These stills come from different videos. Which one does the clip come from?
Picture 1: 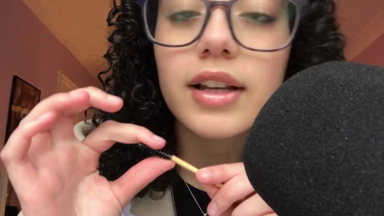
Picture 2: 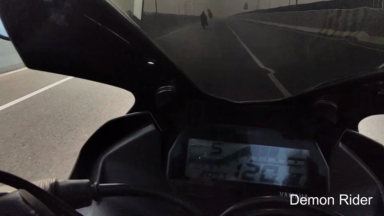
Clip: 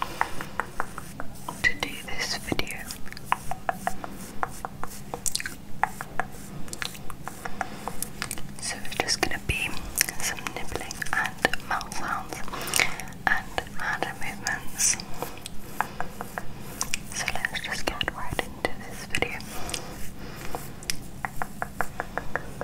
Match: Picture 1